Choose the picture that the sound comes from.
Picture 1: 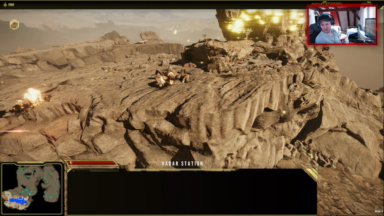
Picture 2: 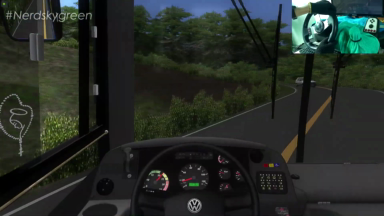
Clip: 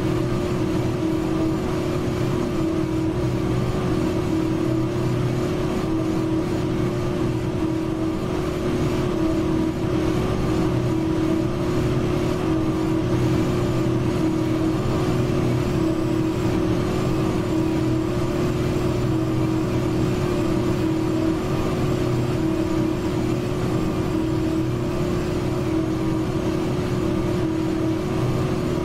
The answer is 2